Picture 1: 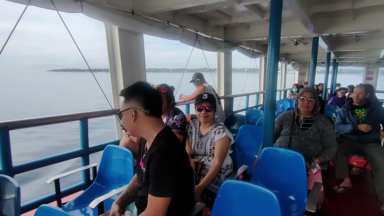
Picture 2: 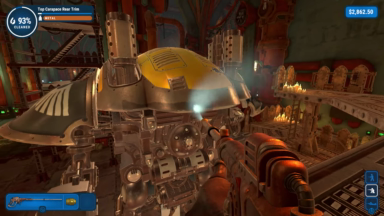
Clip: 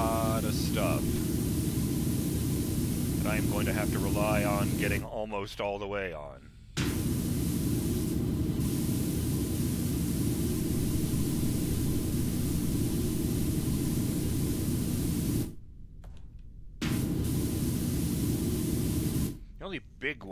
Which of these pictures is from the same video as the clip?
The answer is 2